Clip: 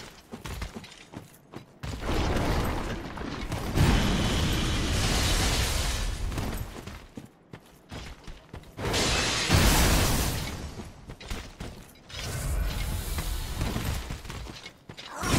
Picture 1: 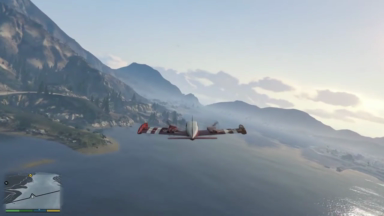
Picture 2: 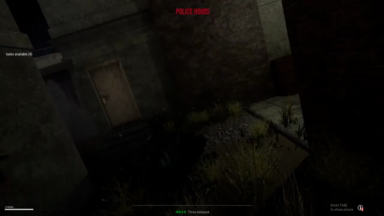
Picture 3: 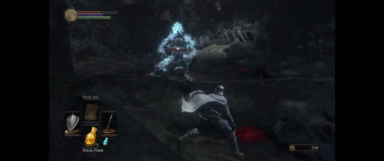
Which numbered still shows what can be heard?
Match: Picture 3